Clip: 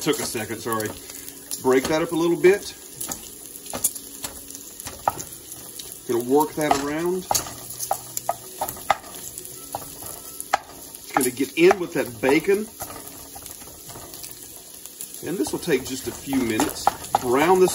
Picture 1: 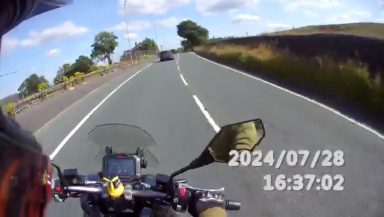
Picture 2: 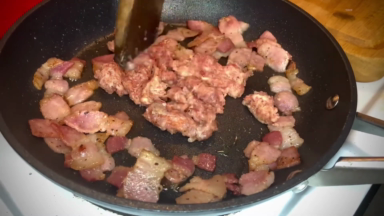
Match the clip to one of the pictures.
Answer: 2